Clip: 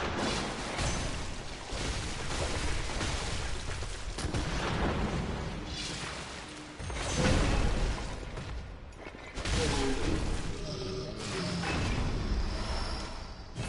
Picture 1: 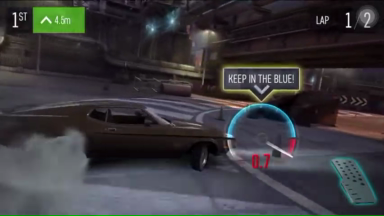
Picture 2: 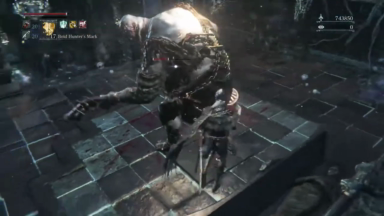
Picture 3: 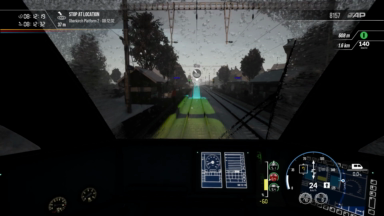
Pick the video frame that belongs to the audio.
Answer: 2